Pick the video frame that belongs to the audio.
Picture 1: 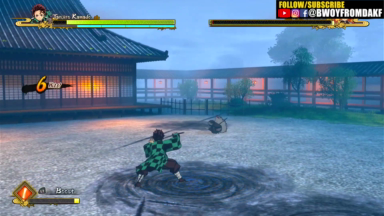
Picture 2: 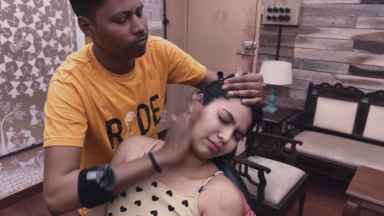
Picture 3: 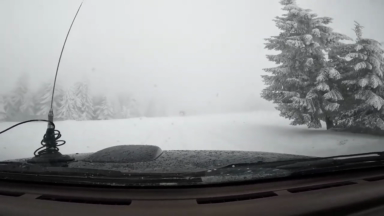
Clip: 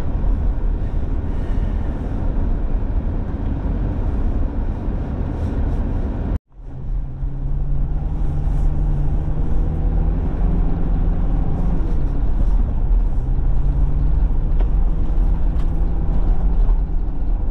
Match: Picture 3